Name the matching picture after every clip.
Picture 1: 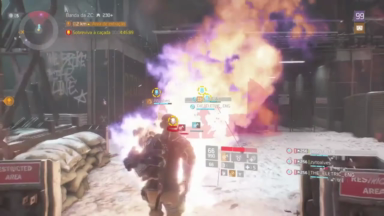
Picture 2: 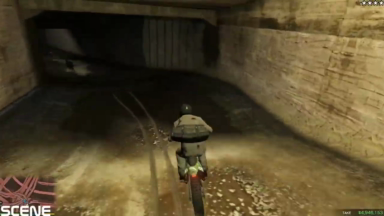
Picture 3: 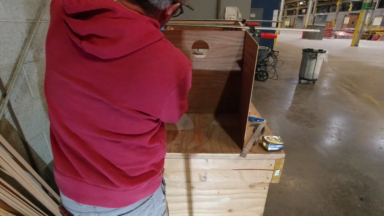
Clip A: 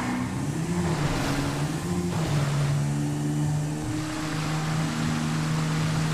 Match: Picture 2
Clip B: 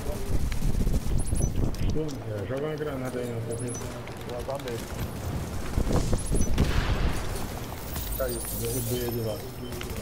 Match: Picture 1